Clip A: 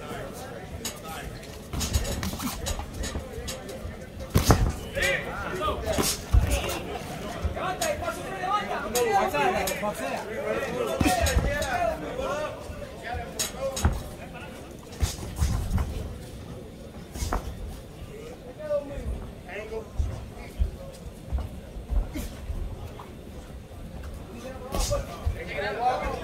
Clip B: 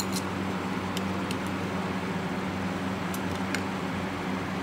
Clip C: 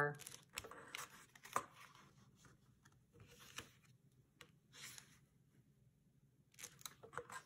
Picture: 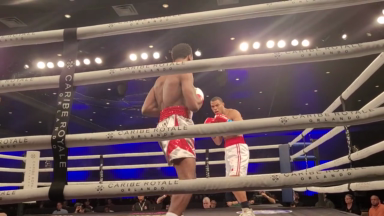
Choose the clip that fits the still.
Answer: A